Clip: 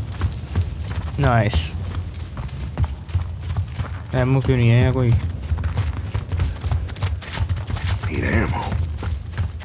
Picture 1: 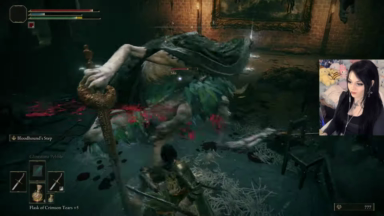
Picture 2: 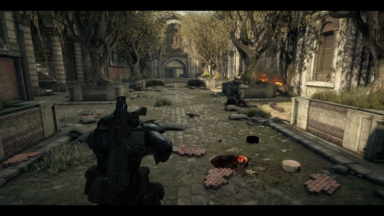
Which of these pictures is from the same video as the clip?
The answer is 2